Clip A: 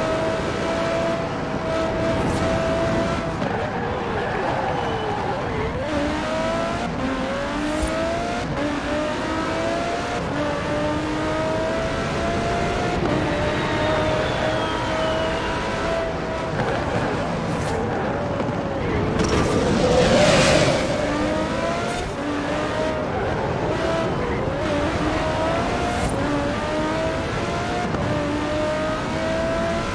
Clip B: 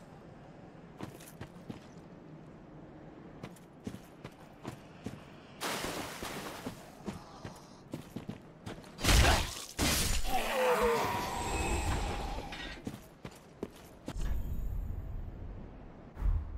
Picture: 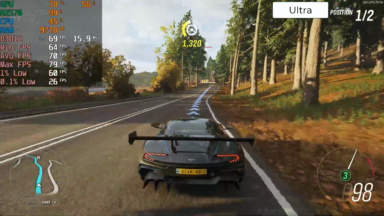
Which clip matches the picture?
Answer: A